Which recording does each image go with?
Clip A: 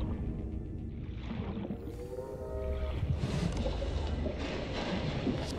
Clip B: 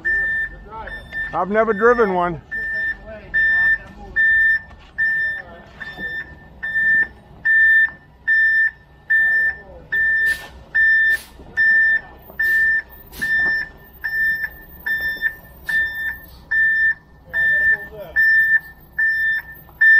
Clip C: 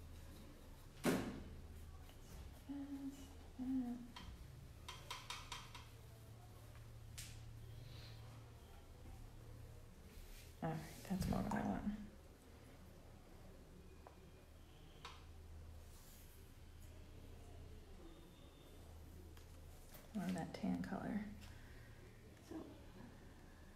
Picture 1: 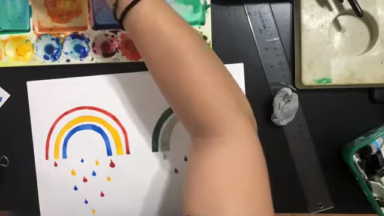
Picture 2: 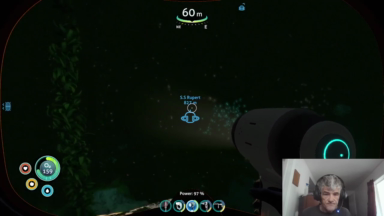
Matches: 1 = C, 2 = A